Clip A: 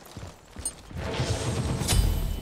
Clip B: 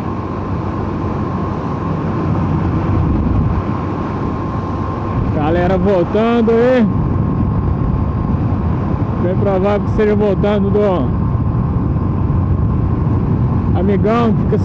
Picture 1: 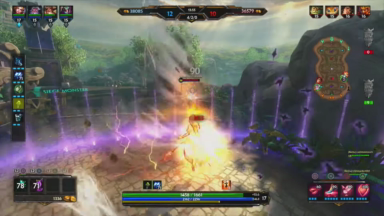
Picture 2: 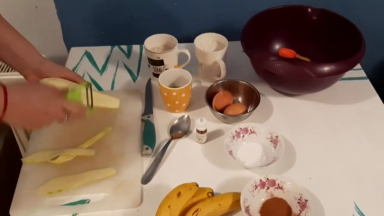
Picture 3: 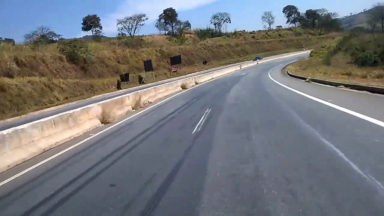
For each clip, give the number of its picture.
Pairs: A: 1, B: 3